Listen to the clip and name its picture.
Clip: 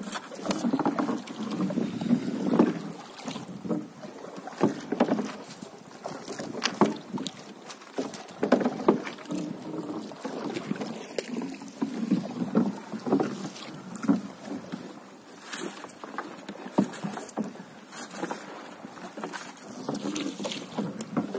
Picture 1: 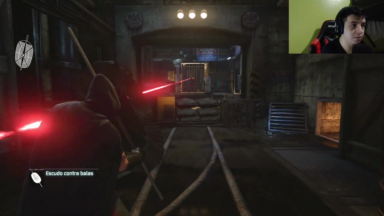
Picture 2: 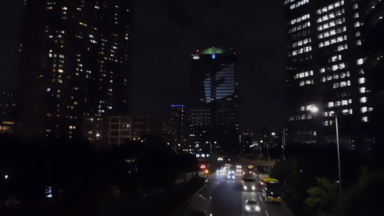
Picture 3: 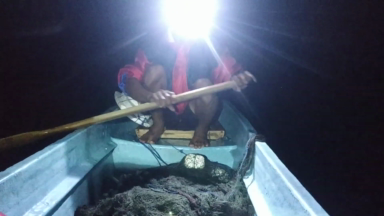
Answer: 3